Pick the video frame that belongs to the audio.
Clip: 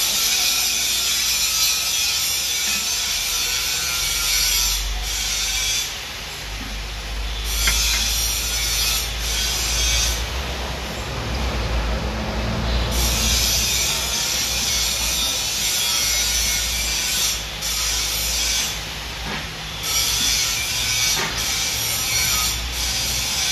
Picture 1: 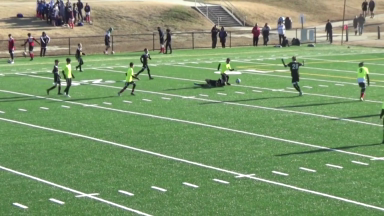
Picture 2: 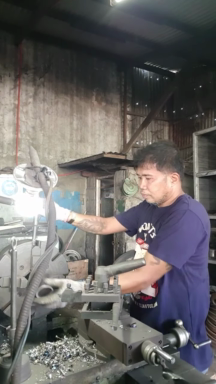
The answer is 2